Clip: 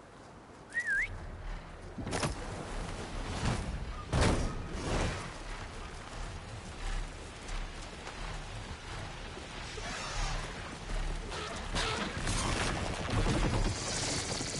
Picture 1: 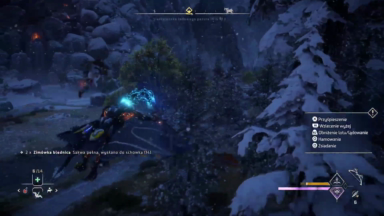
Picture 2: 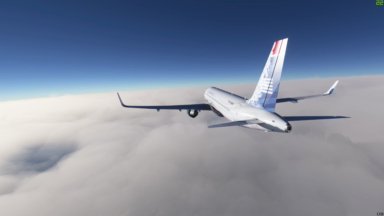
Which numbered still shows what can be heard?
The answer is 1